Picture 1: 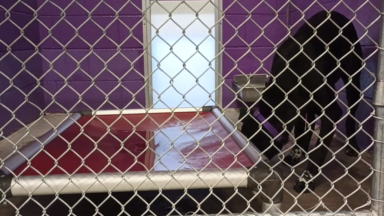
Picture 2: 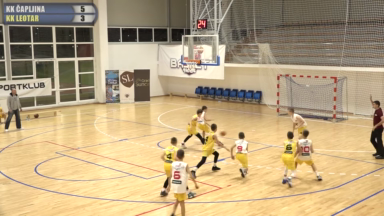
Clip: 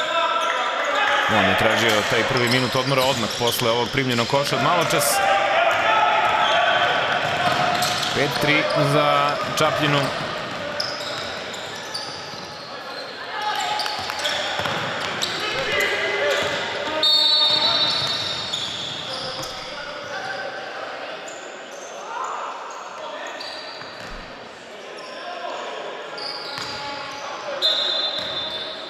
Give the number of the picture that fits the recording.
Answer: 2